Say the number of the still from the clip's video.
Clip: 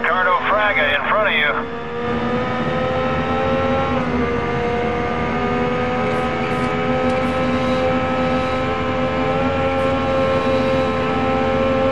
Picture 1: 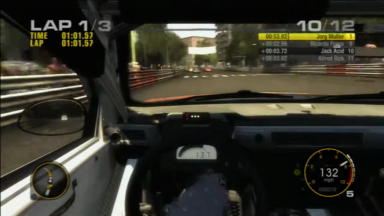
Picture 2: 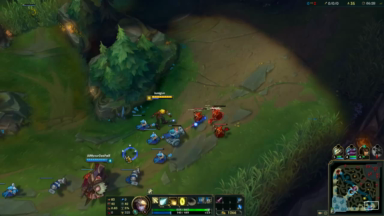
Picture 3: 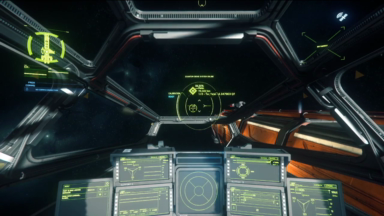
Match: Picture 1